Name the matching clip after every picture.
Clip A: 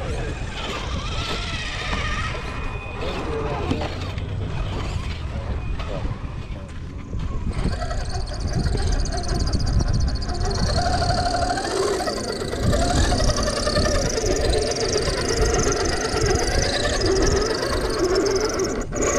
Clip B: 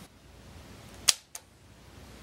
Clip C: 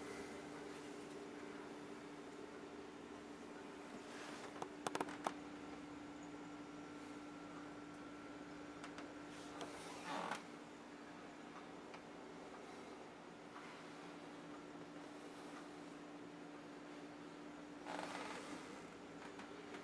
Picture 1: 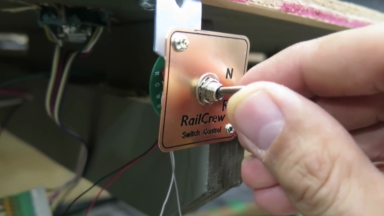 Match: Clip B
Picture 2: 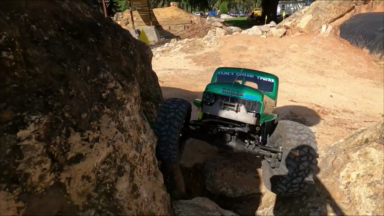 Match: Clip A